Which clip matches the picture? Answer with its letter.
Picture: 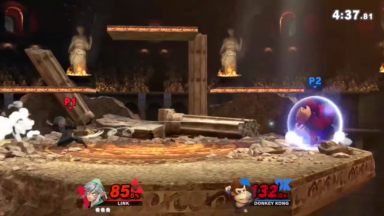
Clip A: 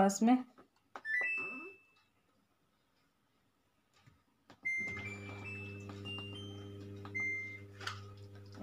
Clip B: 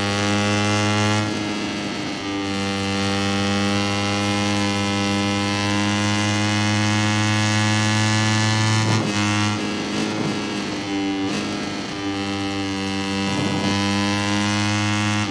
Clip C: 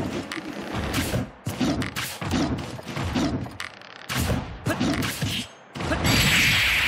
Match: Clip C